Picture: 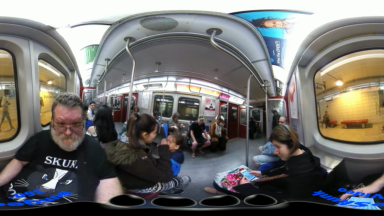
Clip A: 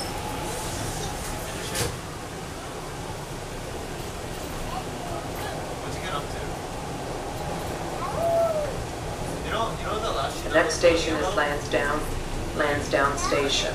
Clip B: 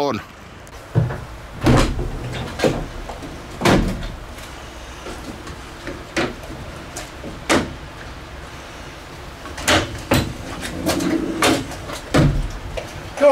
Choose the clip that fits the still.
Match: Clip A